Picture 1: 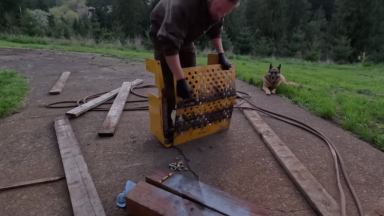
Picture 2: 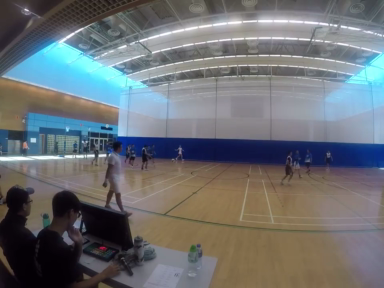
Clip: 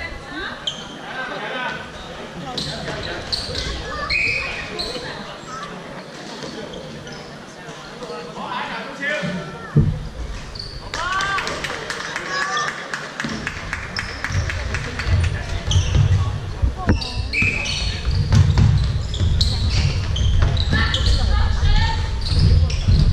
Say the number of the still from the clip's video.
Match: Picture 2